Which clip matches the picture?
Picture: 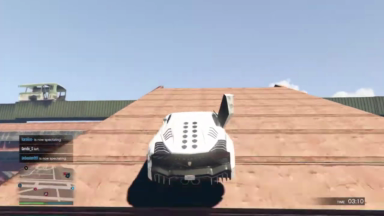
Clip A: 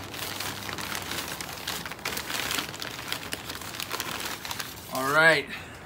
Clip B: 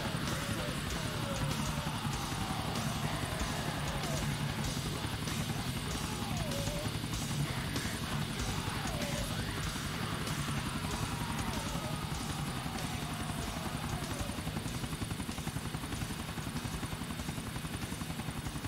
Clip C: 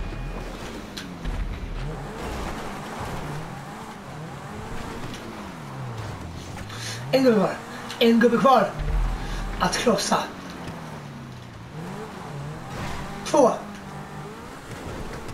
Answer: C